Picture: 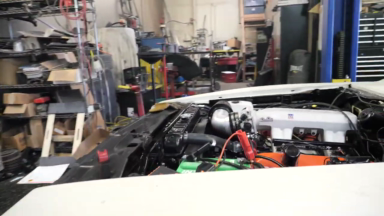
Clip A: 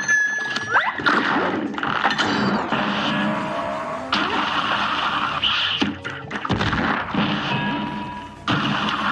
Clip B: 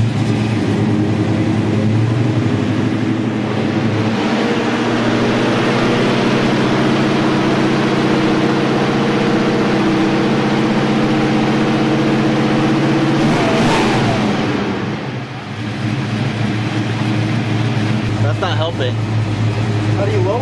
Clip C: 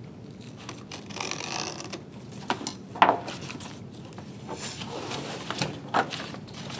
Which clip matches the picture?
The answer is B